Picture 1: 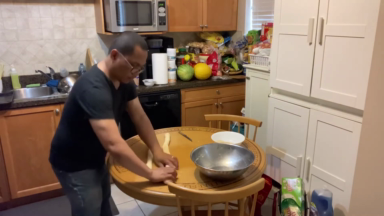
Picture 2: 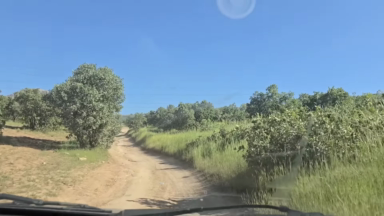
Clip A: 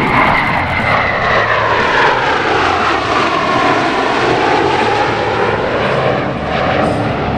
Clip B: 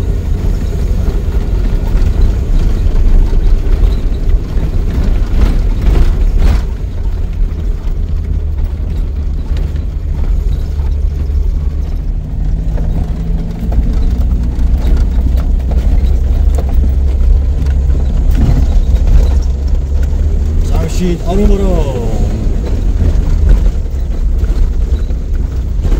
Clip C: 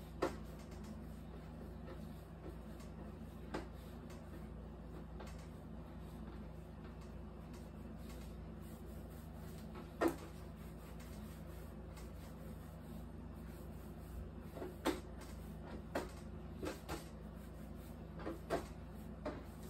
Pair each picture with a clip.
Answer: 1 C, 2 B